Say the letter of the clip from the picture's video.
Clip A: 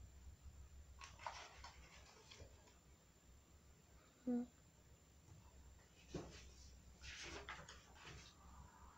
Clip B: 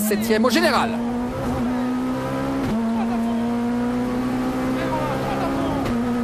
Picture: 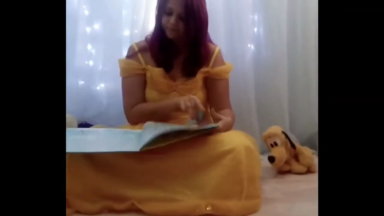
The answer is A